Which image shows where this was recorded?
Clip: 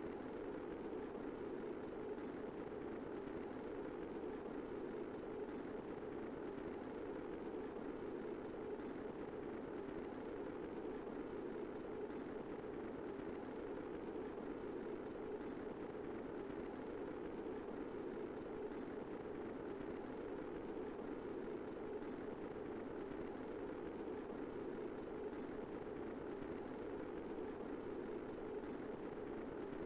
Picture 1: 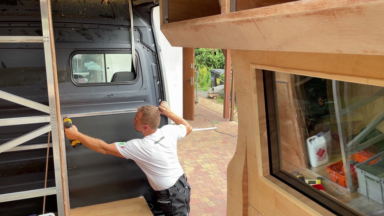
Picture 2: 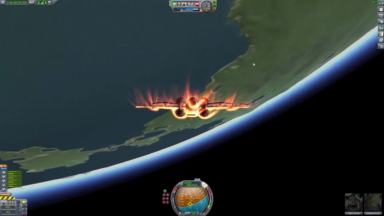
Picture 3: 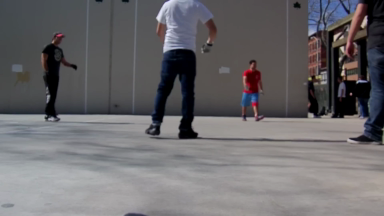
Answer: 2